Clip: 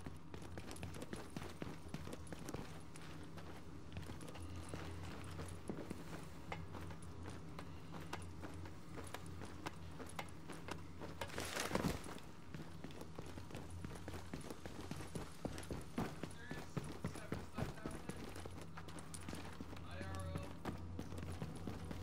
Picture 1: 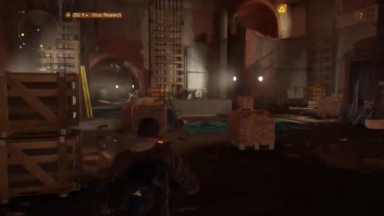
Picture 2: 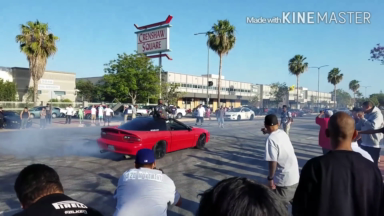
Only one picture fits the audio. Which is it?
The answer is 1